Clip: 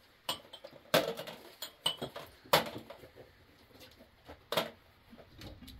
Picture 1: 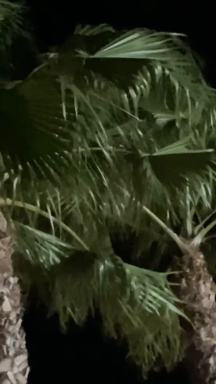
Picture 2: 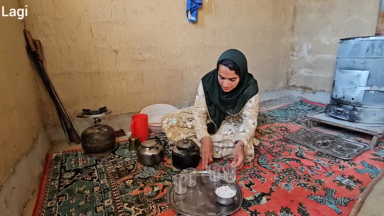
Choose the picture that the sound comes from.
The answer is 2